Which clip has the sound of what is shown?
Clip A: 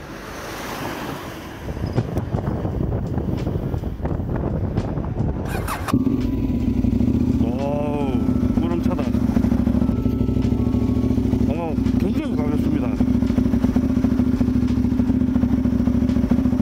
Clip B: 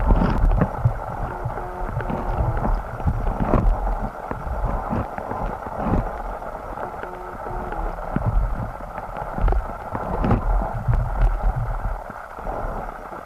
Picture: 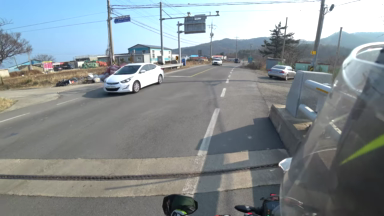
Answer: A